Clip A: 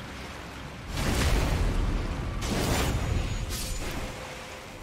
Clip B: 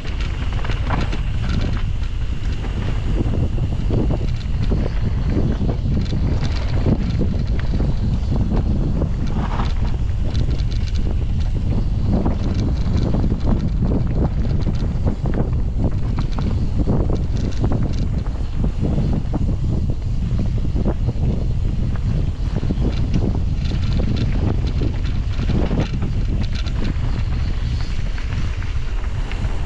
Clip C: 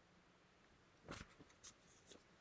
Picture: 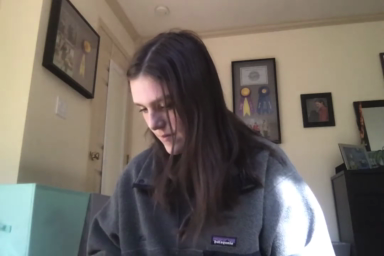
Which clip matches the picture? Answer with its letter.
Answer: C